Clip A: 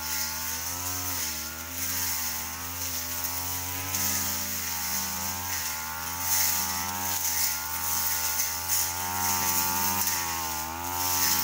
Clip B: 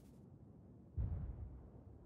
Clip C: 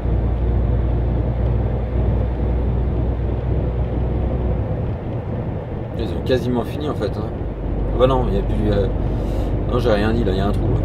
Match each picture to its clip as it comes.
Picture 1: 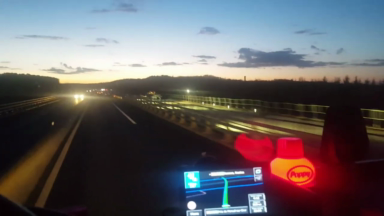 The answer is C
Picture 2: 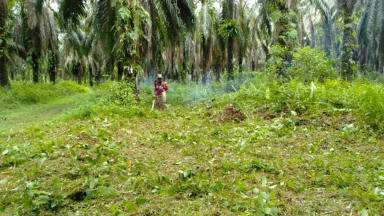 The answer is A